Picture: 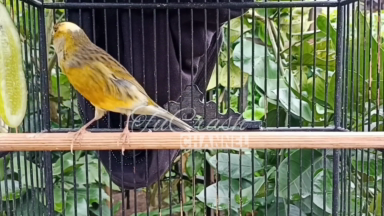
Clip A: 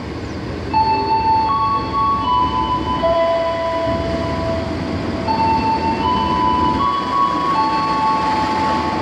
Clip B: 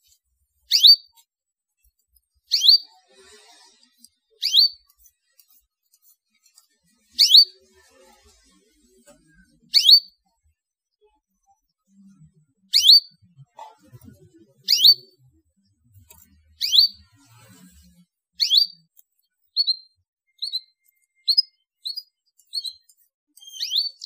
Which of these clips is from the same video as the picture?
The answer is B